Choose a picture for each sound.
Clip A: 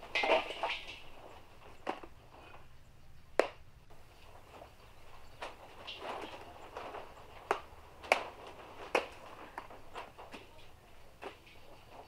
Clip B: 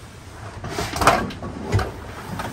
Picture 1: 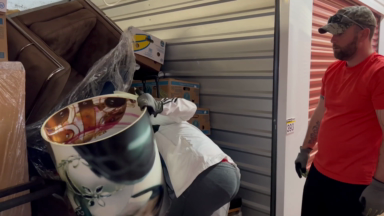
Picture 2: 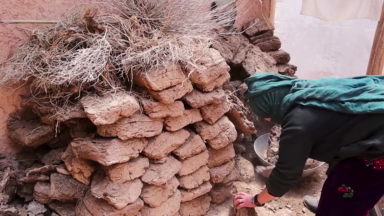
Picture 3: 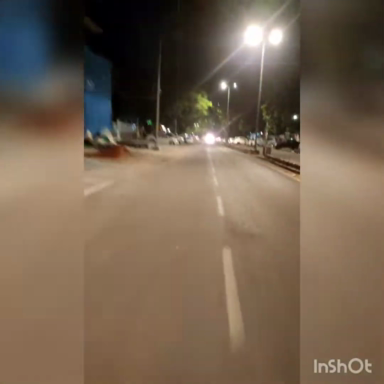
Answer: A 2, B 1